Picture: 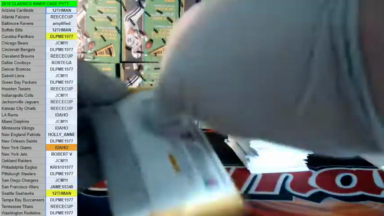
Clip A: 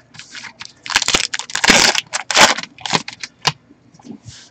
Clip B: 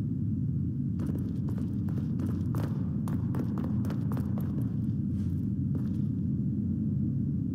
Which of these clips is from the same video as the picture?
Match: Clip A